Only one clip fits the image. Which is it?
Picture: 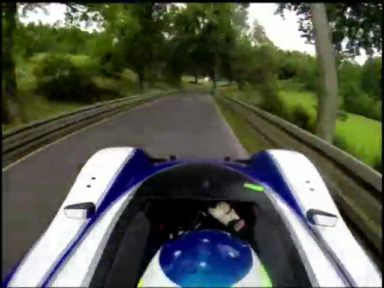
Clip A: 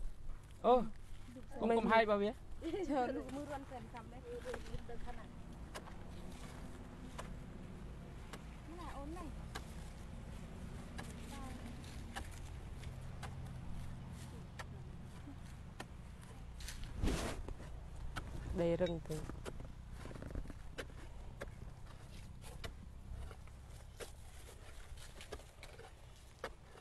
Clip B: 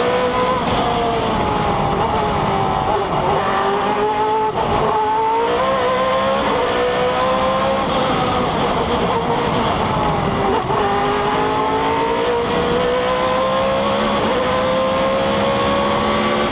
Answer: B